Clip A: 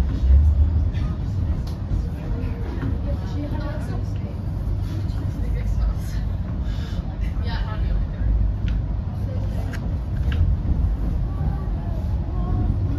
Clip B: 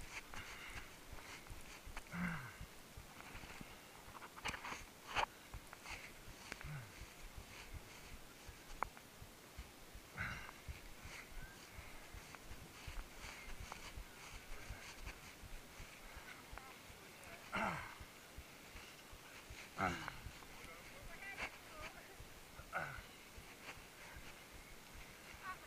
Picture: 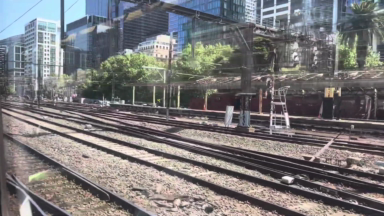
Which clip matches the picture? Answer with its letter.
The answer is A